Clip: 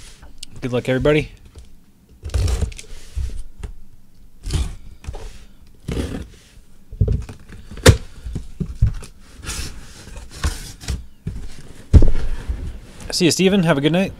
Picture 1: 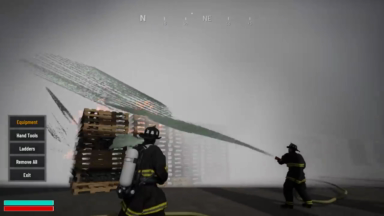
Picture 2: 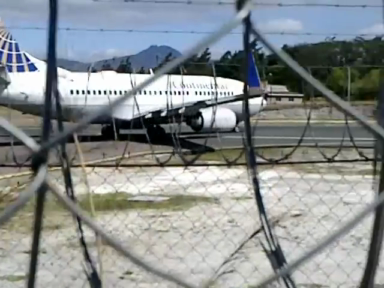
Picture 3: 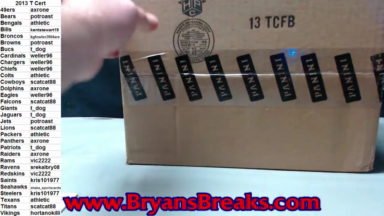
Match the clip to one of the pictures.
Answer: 3